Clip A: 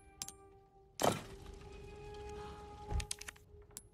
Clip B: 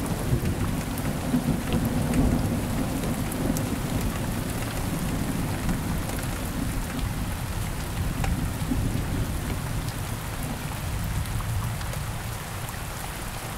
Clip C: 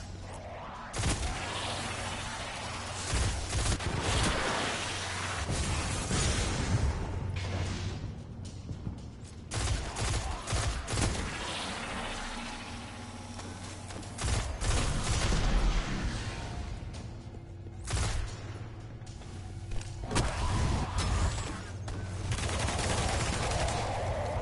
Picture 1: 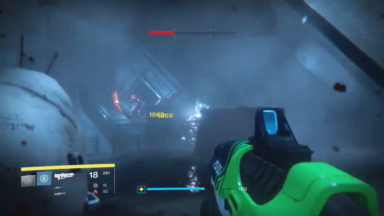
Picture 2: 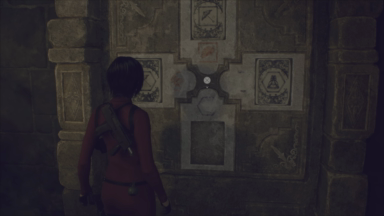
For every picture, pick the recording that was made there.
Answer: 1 C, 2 A